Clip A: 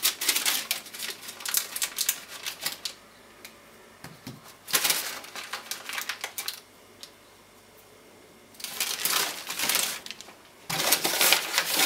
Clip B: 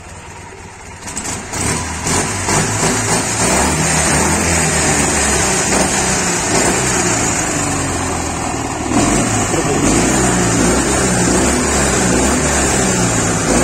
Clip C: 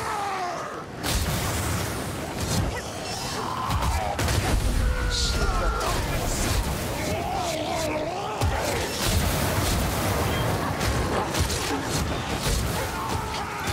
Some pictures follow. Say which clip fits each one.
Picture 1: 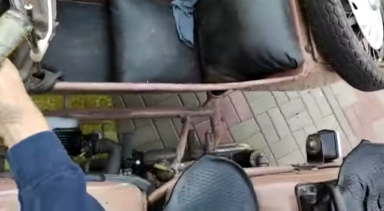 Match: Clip B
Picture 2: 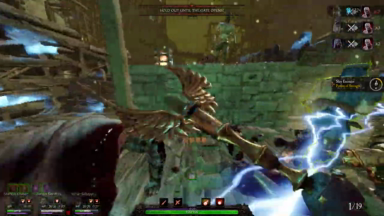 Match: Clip C